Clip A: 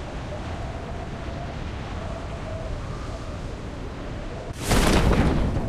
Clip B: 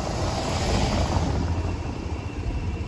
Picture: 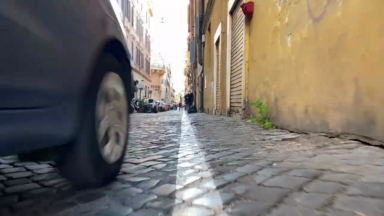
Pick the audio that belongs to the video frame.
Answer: B